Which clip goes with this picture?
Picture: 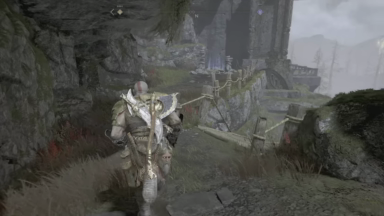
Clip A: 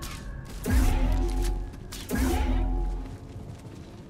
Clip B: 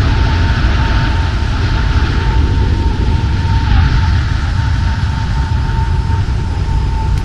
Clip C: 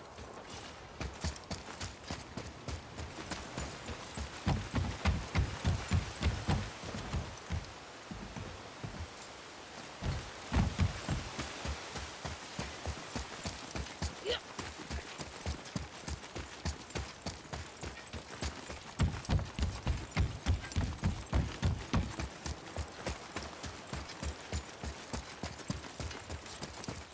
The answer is C